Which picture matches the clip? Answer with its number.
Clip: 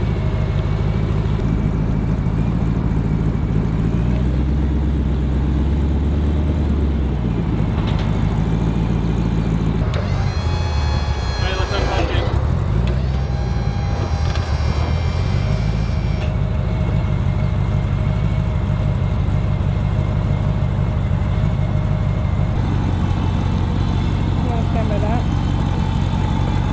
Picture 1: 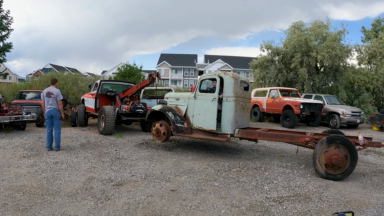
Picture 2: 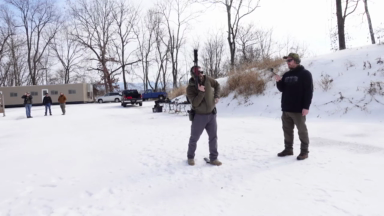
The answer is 1